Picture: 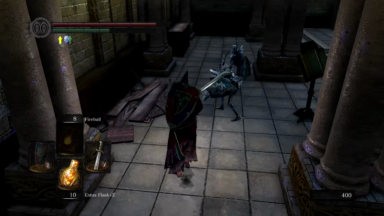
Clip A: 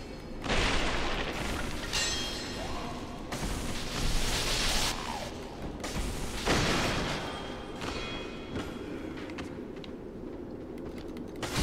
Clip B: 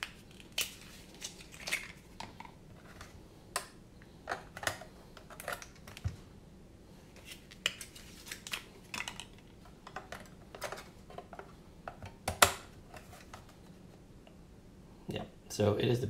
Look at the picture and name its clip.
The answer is A